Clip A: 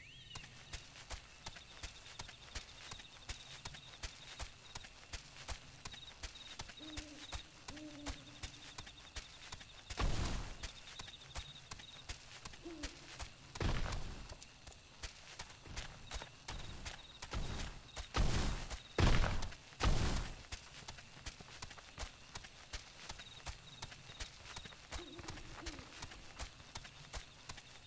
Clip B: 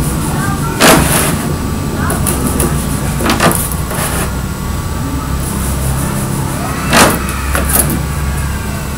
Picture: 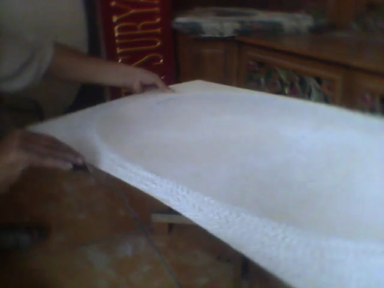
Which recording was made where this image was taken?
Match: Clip B